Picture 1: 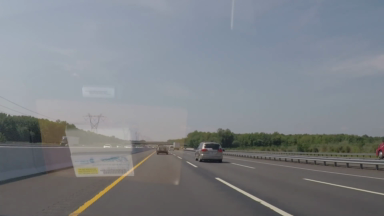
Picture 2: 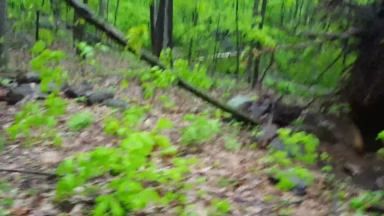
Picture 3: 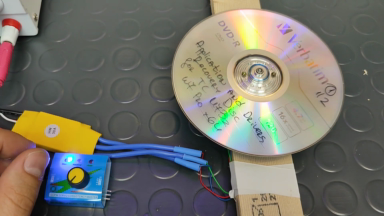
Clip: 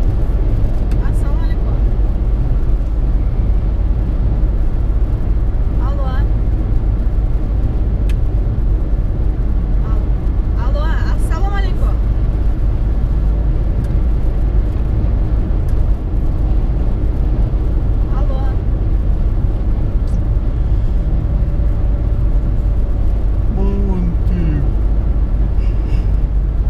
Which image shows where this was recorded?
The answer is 1